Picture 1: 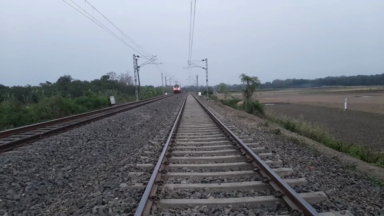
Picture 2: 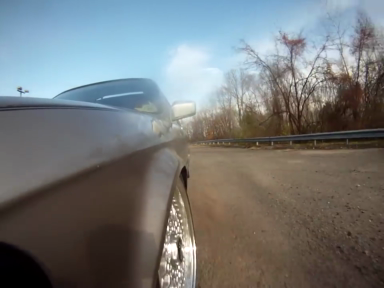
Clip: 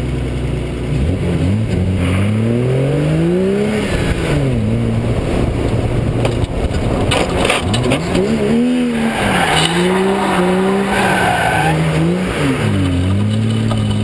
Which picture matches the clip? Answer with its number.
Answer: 2